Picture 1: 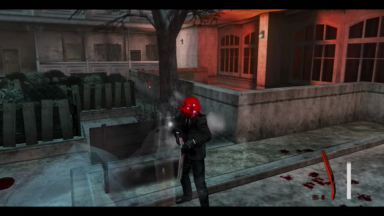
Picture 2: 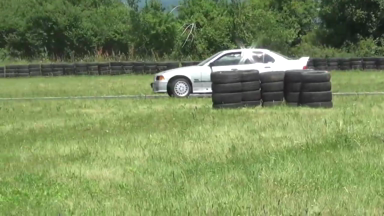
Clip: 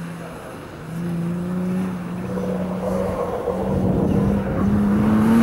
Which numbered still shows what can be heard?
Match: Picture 2